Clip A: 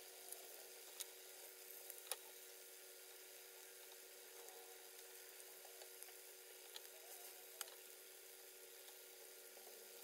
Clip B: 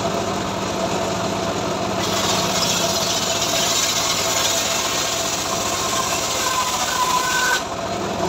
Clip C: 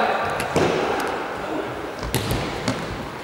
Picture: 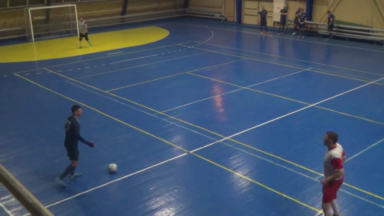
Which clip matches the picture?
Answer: C